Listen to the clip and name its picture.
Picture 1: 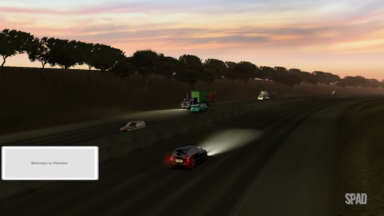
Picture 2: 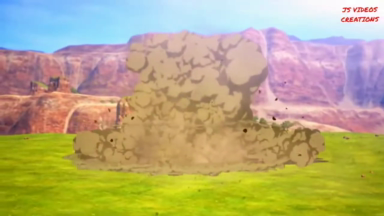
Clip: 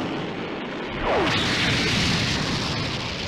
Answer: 2